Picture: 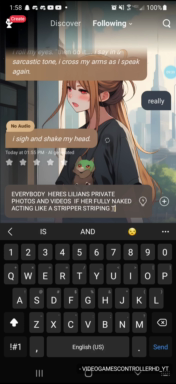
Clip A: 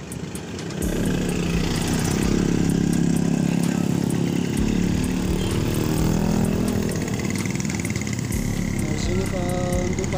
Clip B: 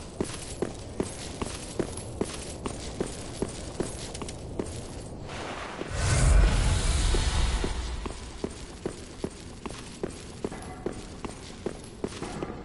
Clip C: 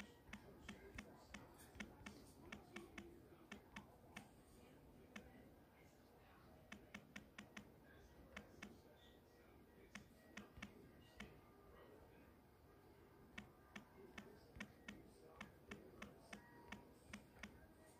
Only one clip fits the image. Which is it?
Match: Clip C